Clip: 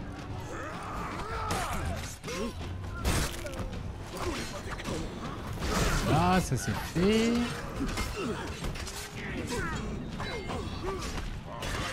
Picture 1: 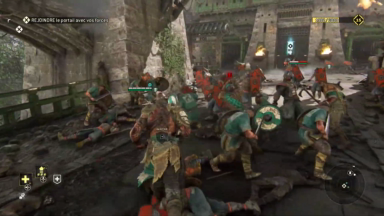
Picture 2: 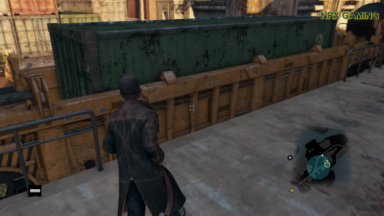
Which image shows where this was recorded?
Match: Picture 1